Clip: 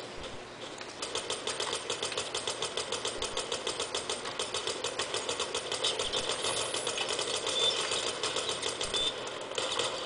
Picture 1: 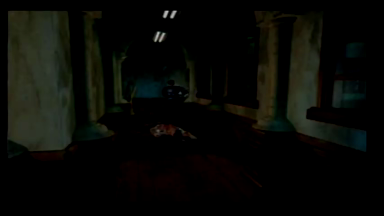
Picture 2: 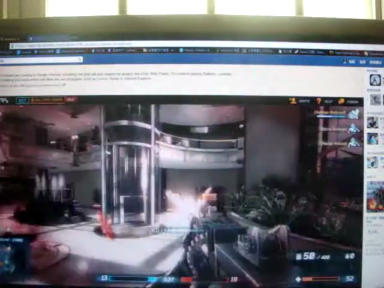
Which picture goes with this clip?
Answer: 2